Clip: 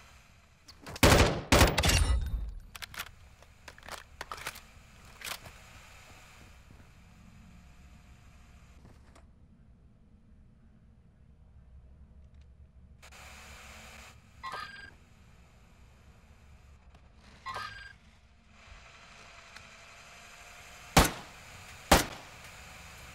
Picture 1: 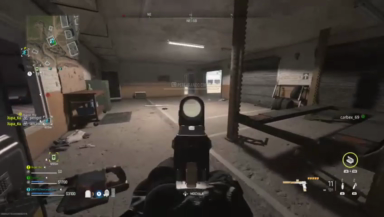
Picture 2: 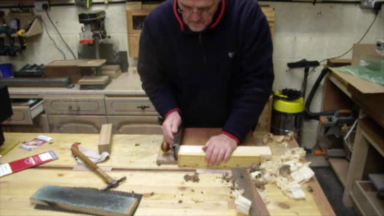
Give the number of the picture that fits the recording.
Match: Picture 1